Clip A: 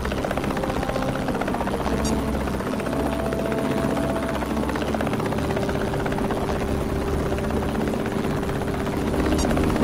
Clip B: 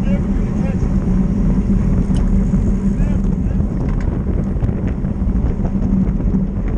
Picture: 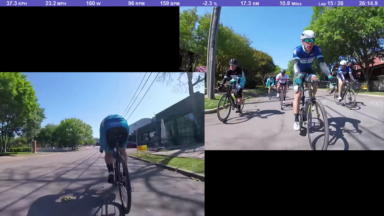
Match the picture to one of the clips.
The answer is B